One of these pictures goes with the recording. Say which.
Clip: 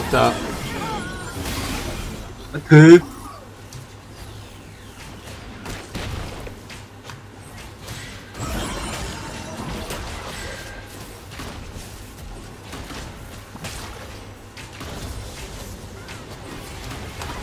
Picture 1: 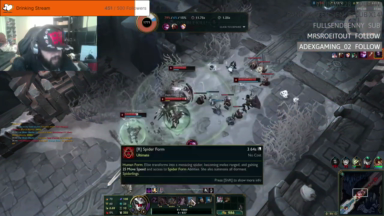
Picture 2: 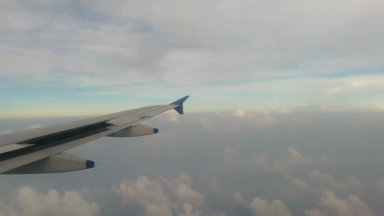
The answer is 1